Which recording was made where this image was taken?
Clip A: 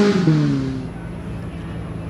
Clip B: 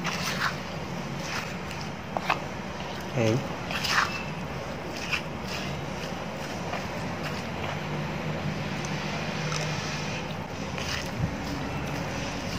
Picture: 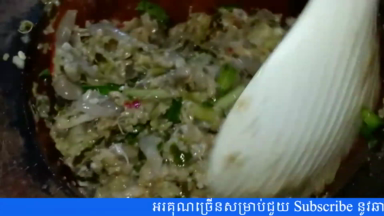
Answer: B